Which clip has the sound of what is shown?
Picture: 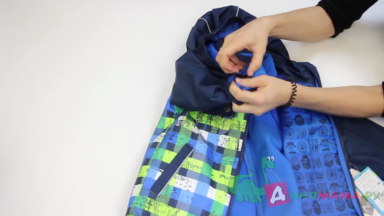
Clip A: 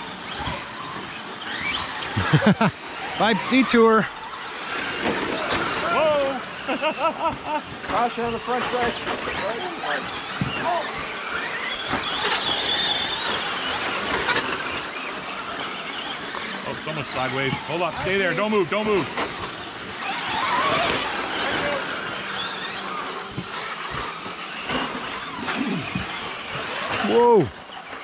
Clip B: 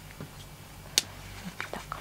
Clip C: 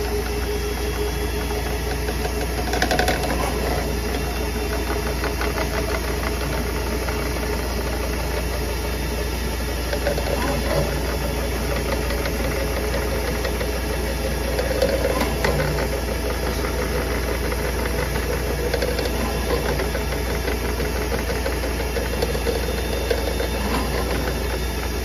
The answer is B